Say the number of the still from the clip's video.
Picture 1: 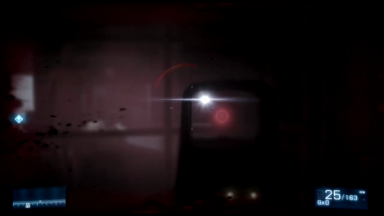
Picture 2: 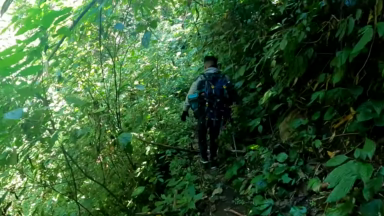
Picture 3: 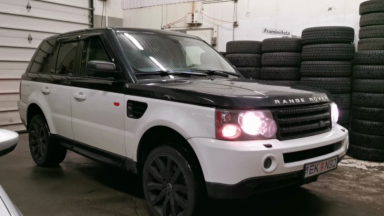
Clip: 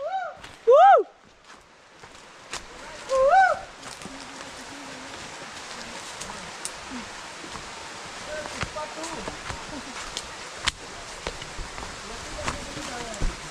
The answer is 2